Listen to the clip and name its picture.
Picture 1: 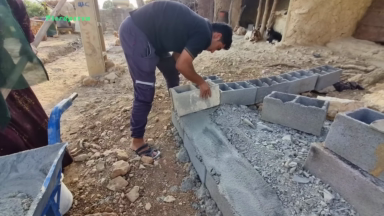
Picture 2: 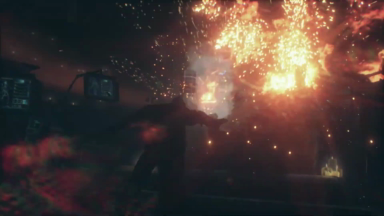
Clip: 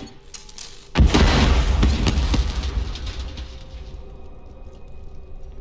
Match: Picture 2